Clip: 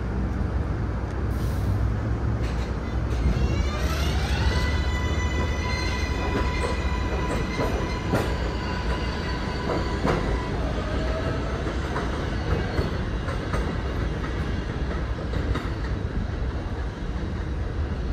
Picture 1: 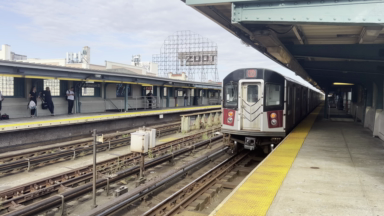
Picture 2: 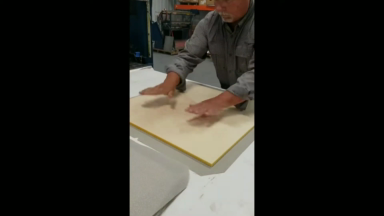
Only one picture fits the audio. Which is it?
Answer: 1